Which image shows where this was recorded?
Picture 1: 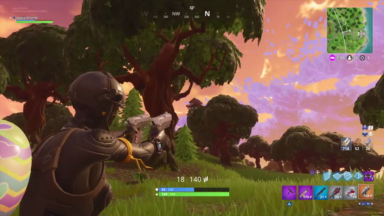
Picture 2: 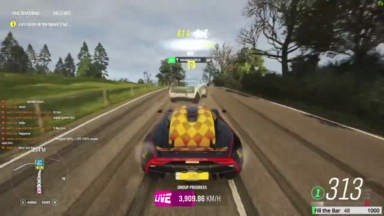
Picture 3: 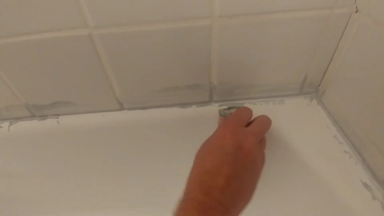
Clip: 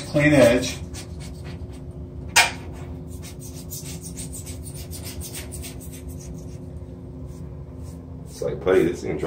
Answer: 3